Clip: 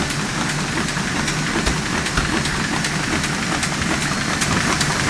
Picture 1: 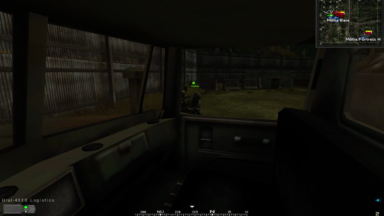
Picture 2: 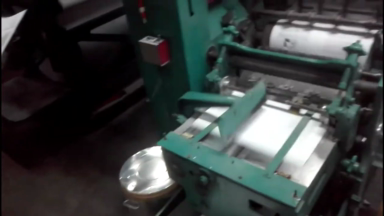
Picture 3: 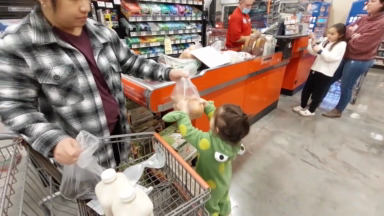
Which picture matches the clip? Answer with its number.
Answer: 2